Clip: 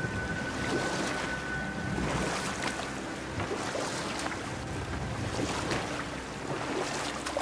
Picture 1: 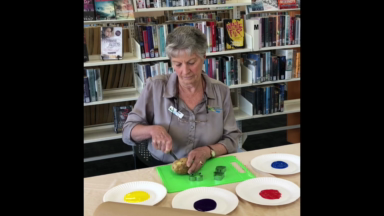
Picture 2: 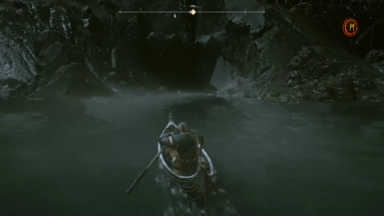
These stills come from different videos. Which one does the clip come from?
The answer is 2